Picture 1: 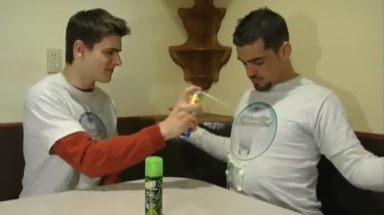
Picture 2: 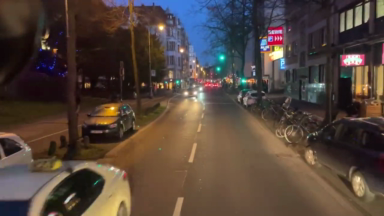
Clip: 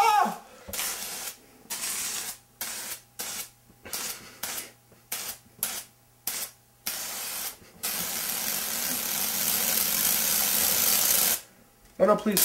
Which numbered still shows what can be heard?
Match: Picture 1